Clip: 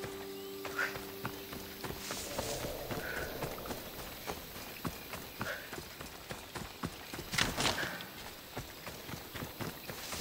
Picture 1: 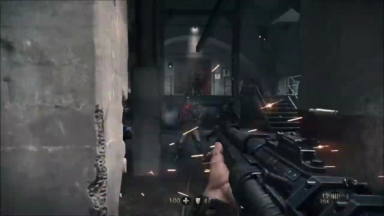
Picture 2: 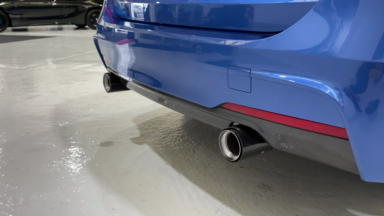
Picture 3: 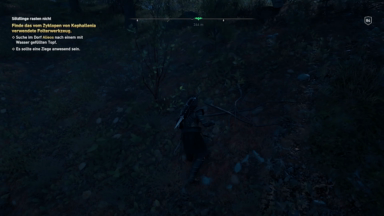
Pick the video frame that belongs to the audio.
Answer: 3